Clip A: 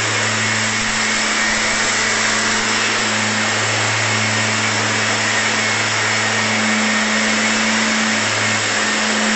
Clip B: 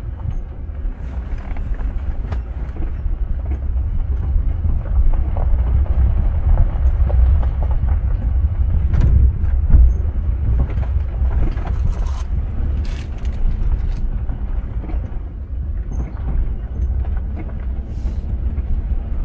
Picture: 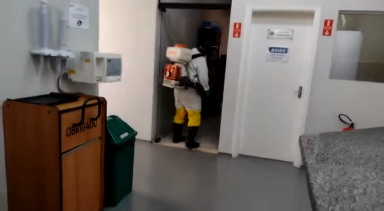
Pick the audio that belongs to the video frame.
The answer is A